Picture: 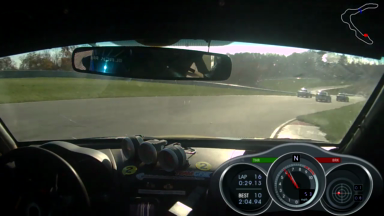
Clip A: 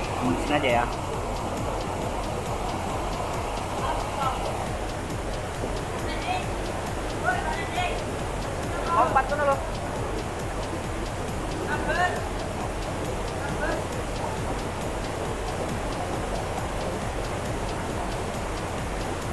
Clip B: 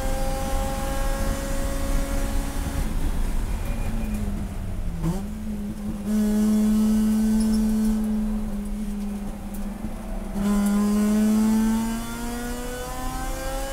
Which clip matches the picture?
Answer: B